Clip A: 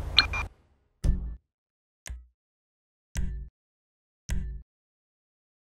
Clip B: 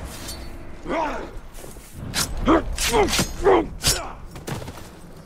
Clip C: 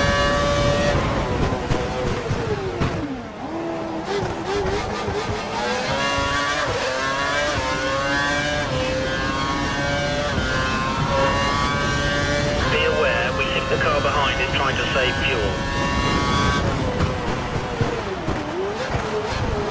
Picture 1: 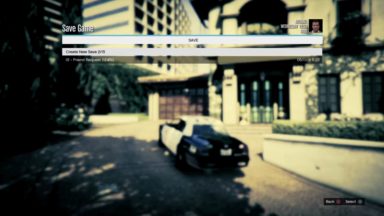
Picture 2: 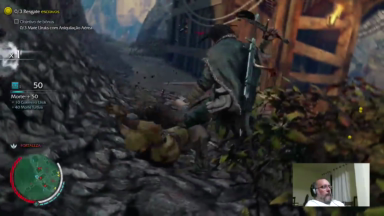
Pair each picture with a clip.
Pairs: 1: A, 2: B